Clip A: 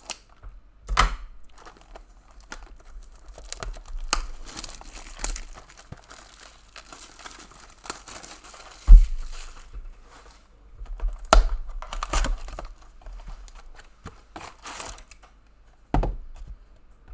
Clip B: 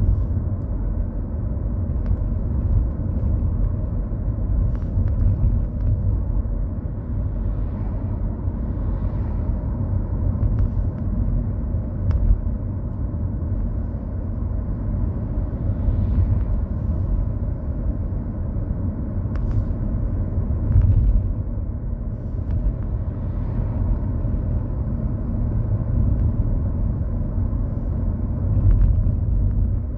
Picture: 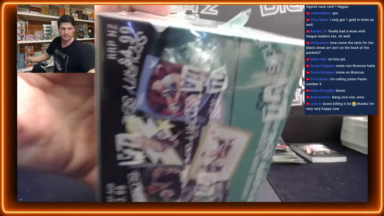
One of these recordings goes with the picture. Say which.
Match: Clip A